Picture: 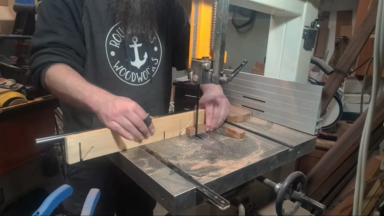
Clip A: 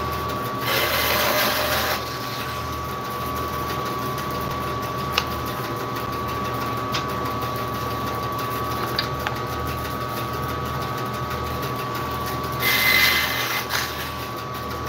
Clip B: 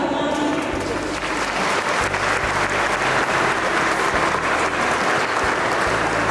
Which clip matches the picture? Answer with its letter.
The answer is A